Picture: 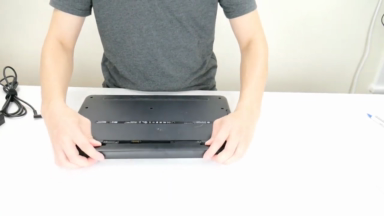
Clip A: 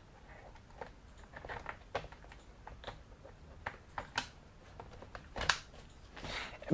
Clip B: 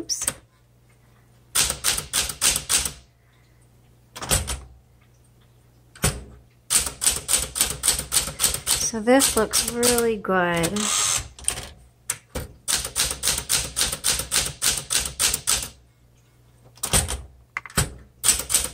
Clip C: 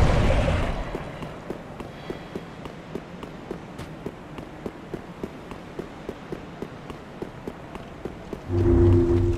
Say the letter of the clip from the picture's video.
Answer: A